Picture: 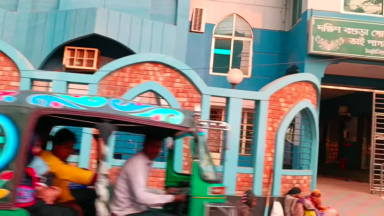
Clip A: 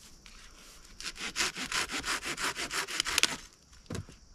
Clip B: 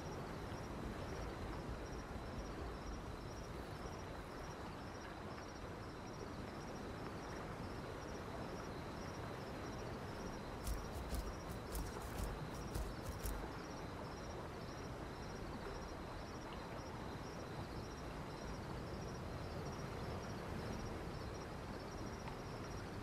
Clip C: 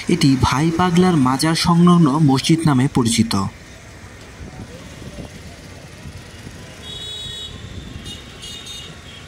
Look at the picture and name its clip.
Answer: C